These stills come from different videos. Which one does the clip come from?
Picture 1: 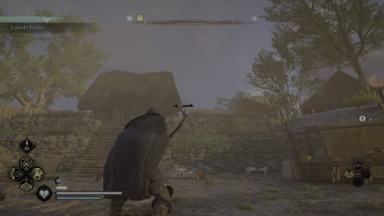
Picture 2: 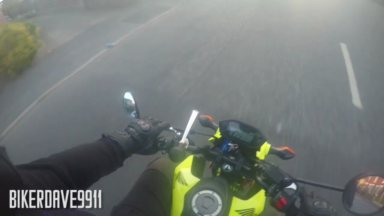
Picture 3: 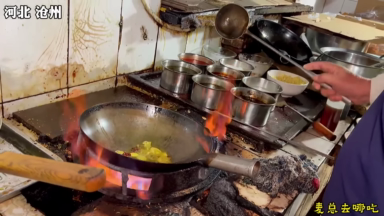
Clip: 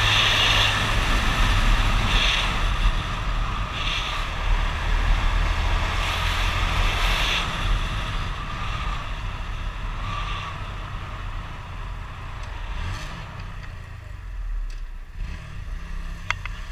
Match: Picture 2